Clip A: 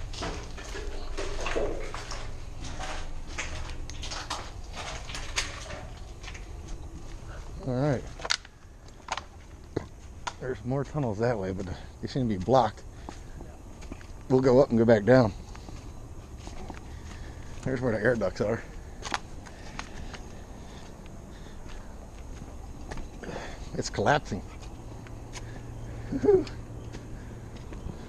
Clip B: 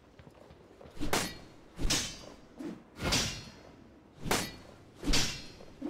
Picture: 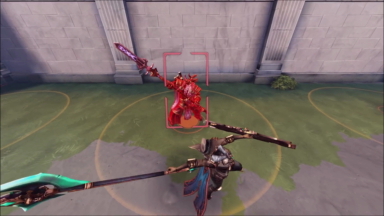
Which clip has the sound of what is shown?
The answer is B